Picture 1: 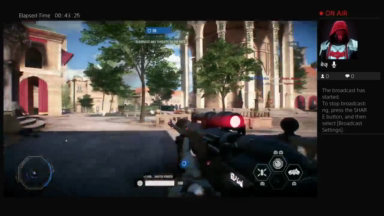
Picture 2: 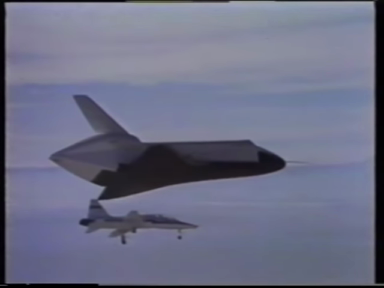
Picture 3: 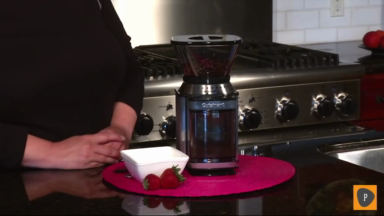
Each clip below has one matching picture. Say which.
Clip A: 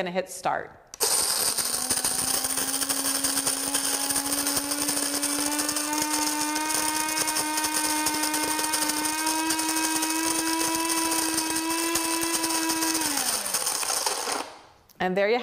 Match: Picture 3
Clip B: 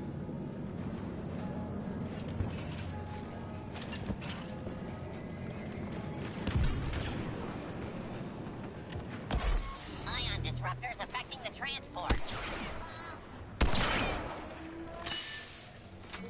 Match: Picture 1